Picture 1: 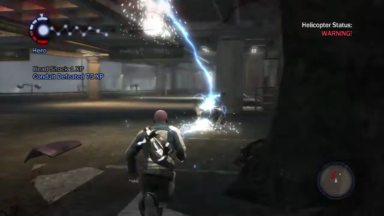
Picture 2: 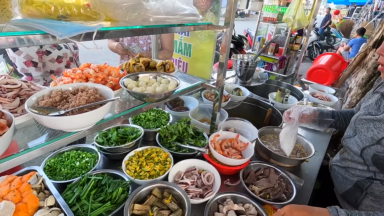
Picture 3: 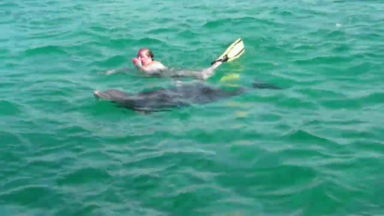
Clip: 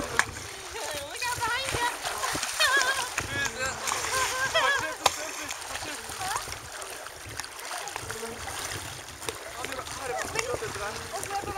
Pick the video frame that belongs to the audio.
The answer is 3